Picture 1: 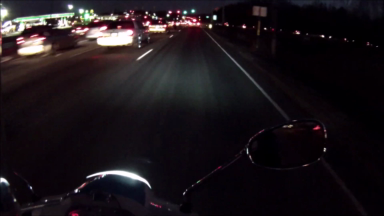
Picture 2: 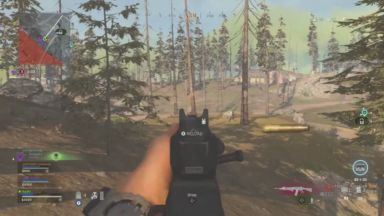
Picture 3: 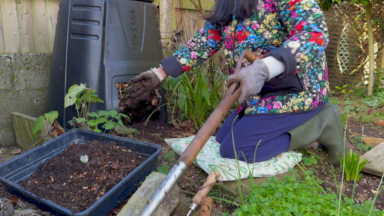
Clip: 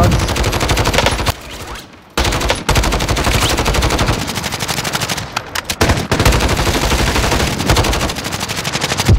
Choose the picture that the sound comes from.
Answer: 2